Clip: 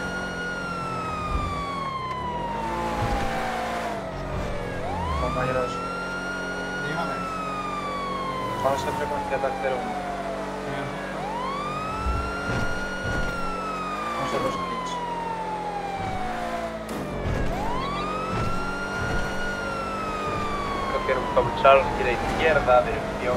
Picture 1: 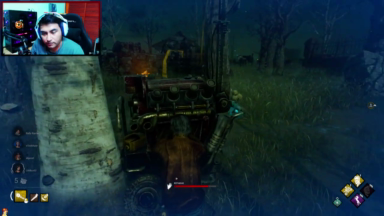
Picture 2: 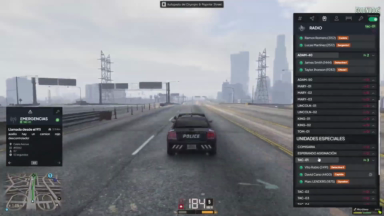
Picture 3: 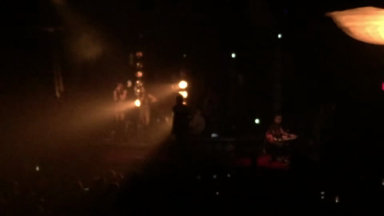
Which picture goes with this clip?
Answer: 2